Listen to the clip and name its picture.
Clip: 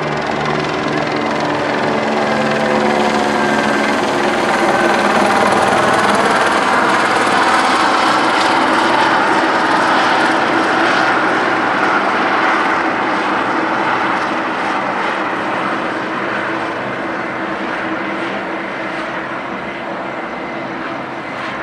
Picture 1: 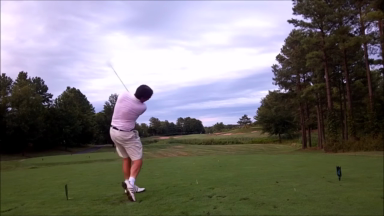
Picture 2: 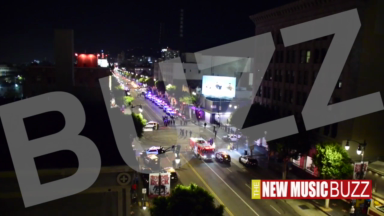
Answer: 2